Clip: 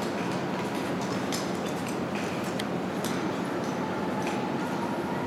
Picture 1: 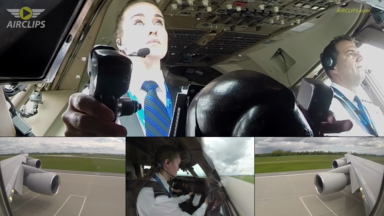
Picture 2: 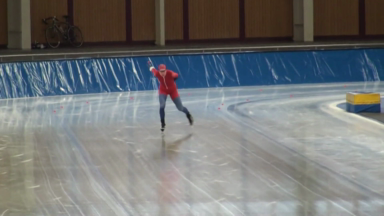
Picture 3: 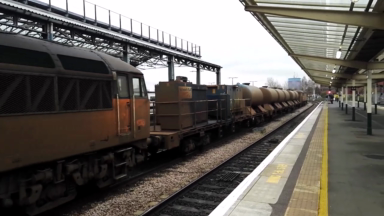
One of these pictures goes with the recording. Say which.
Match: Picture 2